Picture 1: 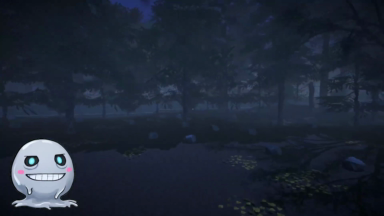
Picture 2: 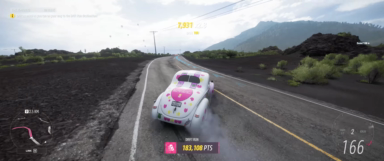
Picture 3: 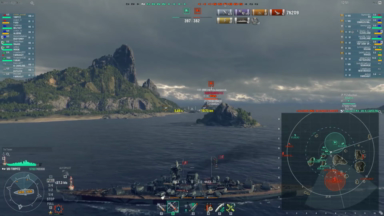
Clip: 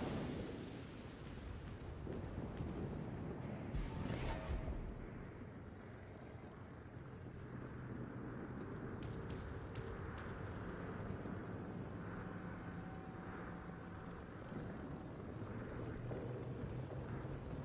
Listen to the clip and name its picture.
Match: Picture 3